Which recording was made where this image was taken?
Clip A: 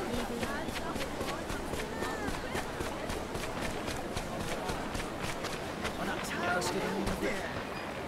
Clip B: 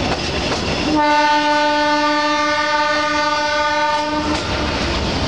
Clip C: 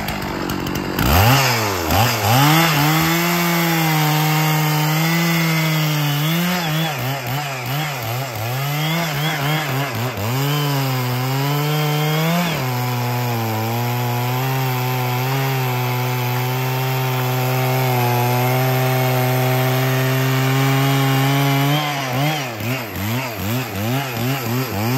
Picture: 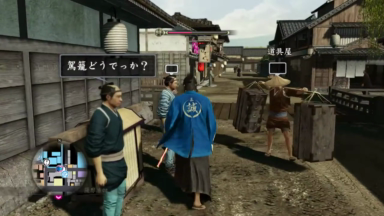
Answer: A